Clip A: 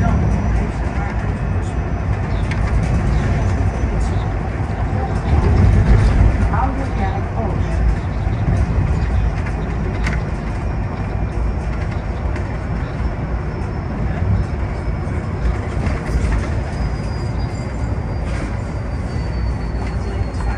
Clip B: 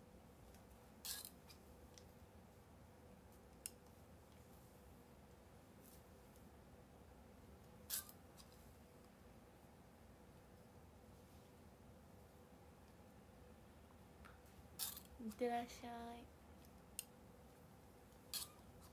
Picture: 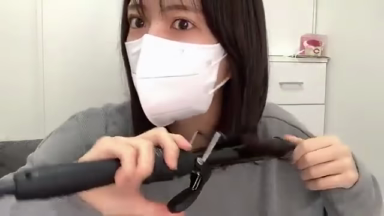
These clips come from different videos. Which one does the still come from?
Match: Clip B